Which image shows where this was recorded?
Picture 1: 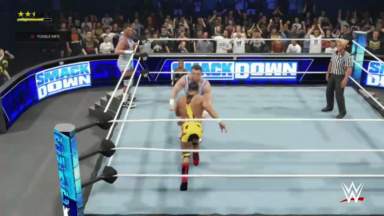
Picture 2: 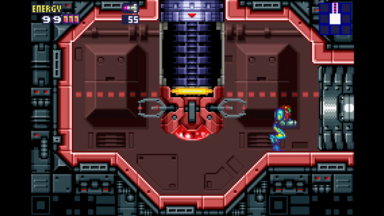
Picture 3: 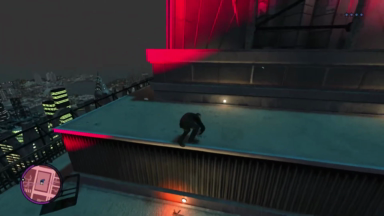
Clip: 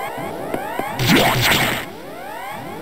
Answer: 2